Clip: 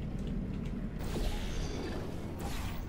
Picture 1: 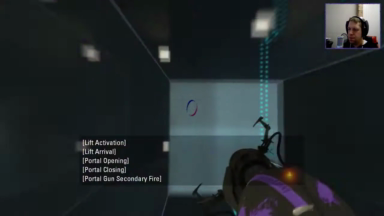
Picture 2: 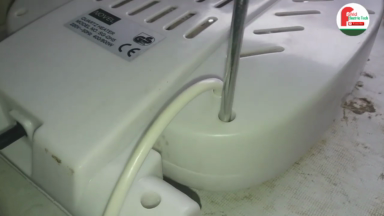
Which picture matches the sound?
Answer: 1